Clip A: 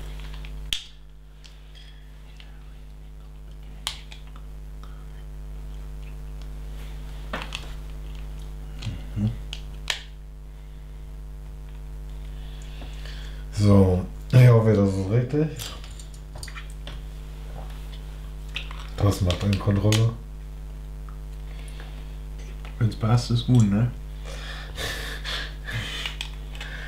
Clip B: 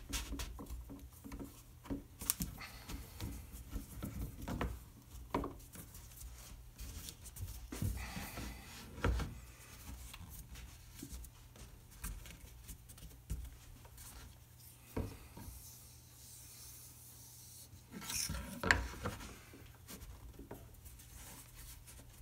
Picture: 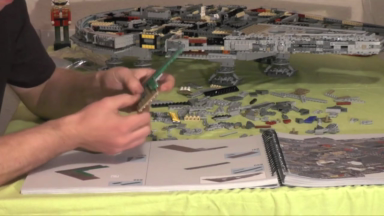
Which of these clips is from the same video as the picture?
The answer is A